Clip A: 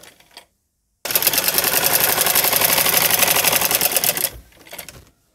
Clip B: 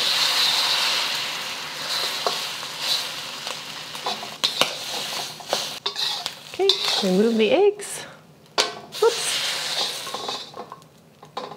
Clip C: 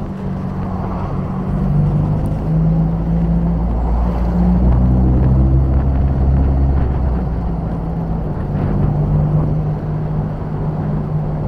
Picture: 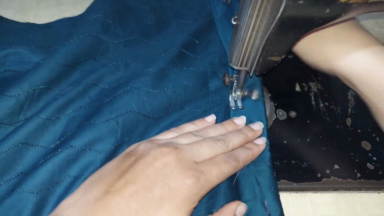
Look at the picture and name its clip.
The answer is A